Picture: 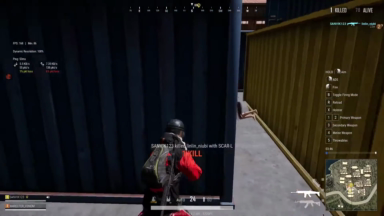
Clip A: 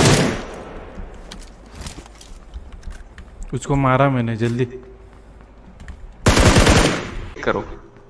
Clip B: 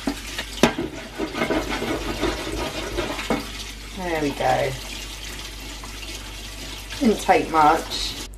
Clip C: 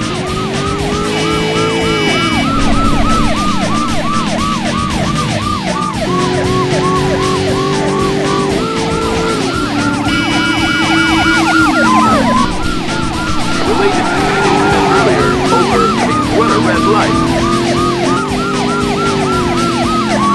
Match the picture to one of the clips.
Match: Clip A